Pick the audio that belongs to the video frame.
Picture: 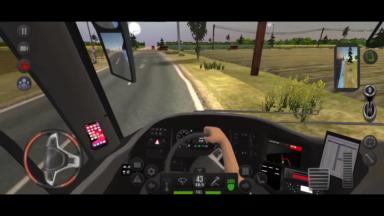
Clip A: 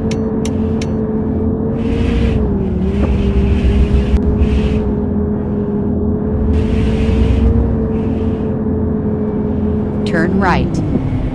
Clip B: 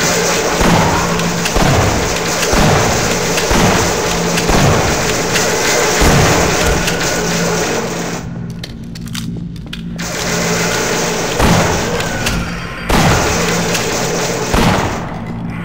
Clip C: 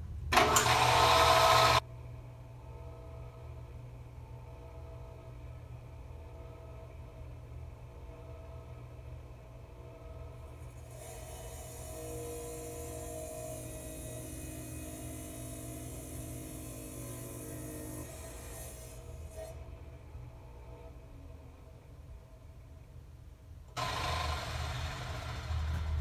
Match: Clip A